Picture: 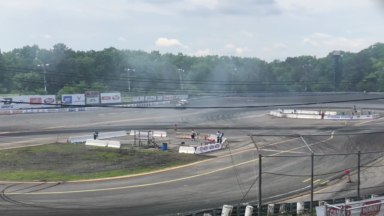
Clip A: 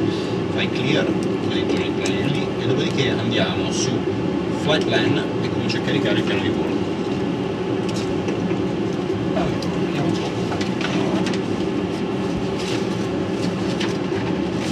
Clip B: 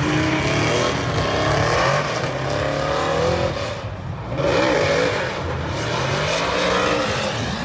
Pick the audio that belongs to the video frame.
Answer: B